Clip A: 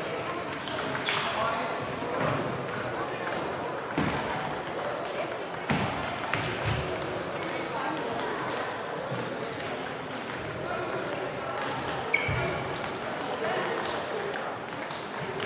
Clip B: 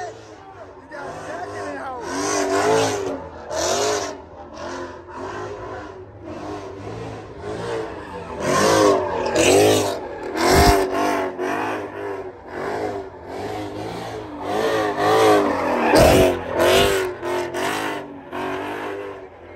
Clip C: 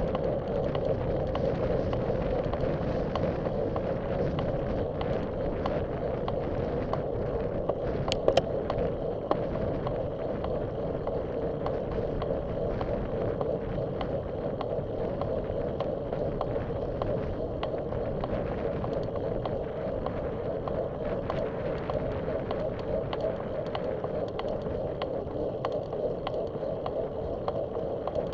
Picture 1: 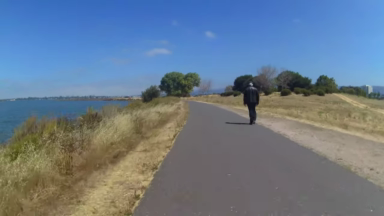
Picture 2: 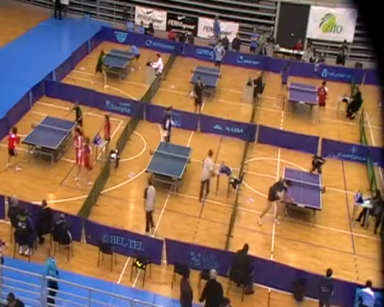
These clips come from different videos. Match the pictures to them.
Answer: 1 C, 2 A